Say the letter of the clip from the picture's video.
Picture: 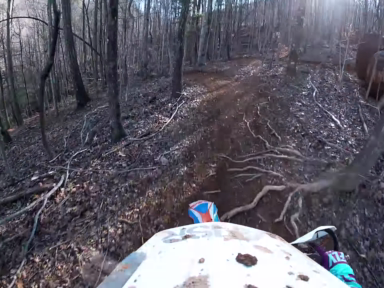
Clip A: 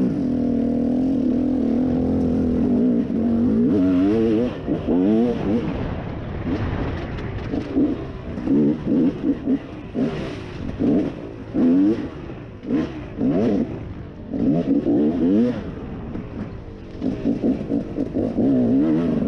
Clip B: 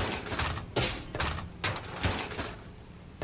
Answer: A